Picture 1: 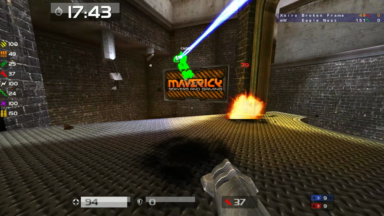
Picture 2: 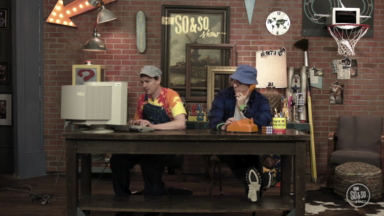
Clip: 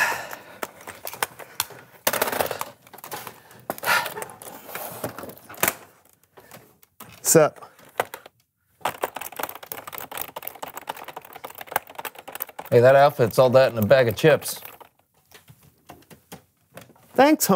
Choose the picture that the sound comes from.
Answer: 2